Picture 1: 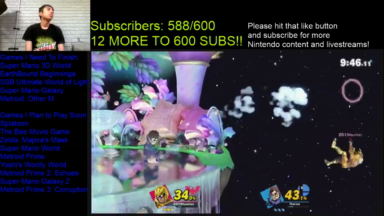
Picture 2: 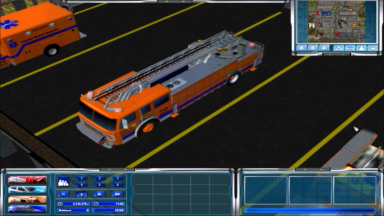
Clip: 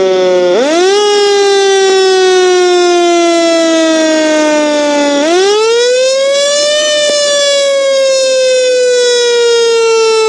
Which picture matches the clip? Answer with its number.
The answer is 2